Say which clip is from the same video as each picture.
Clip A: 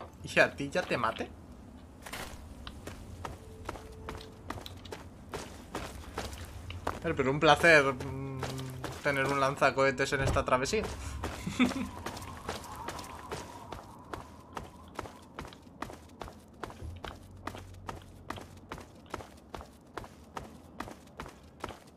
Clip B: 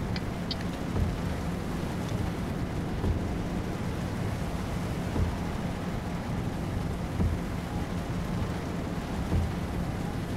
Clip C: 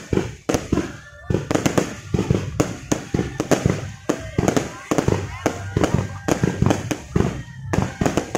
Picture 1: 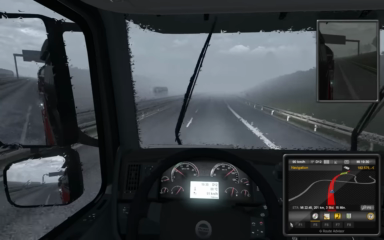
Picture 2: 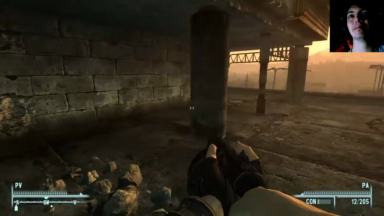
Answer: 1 B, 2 A